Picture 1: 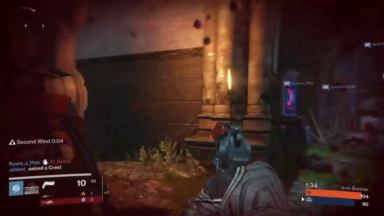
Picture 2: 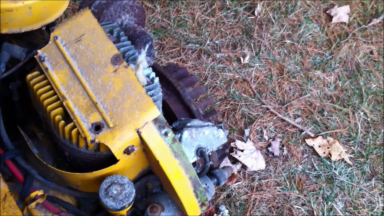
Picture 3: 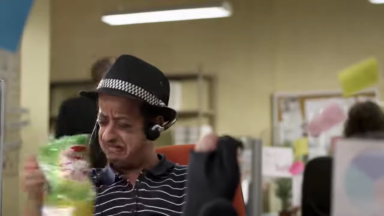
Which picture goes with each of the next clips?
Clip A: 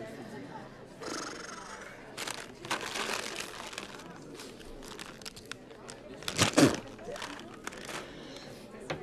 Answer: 3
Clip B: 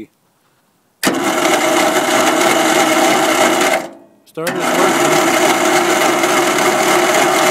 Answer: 2